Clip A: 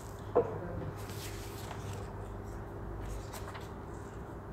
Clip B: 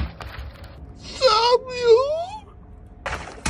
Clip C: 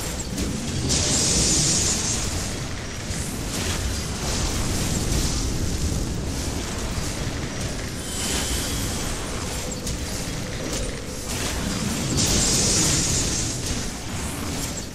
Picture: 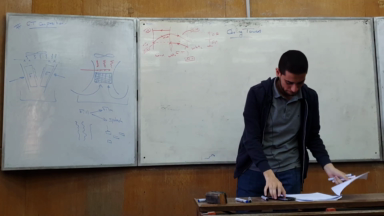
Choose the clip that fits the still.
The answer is A